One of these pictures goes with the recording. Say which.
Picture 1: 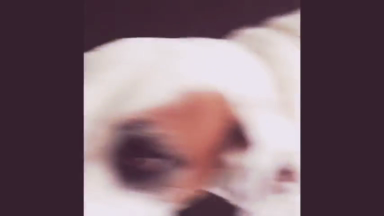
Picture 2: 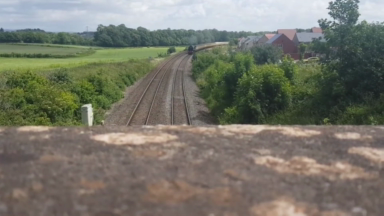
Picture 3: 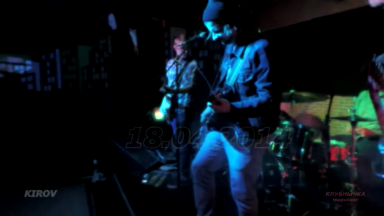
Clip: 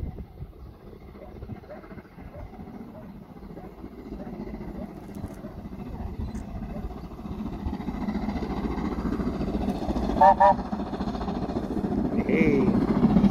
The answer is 2